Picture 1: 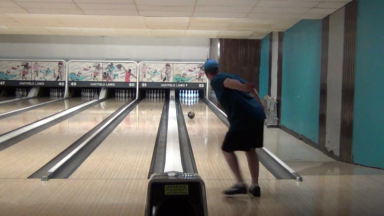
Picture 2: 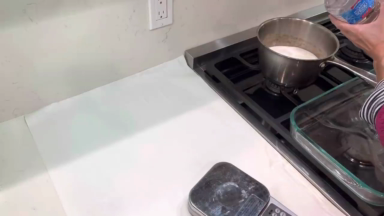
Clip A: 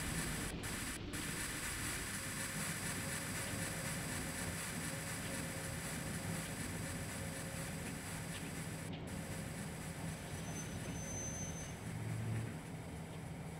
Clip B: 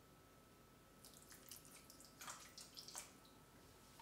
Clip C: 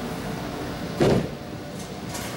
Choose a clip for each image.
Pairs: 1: C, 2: B